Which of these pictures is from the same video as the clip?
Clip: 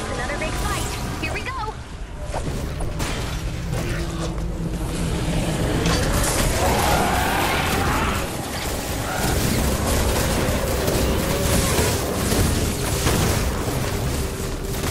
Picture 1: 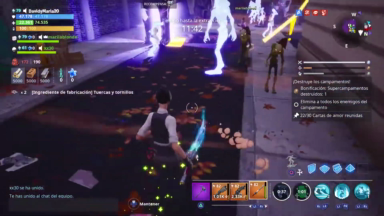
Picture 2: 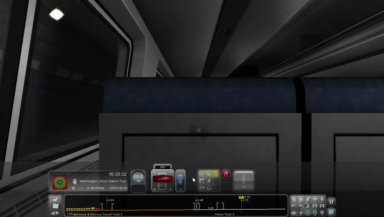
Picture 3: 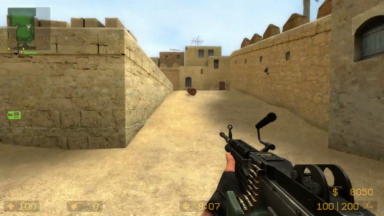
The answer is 1